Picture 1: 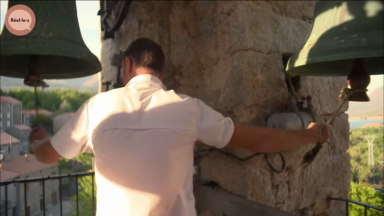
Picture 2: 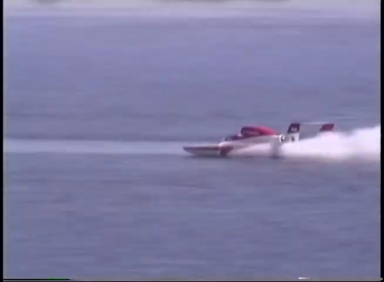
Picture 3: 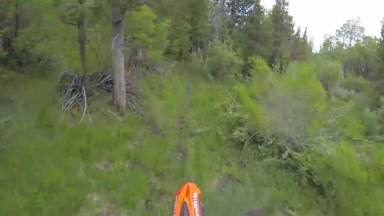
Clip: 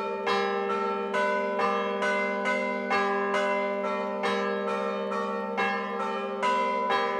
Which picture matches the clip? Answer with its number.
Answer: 1